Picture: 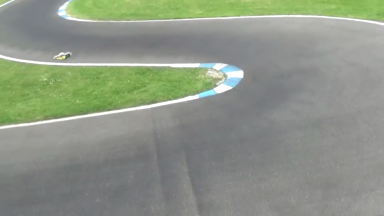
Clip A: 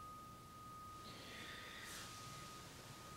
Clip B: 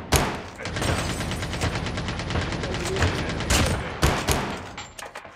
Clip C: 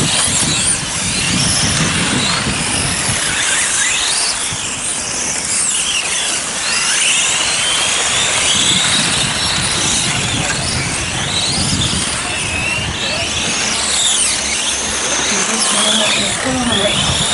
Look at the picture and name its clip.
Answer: C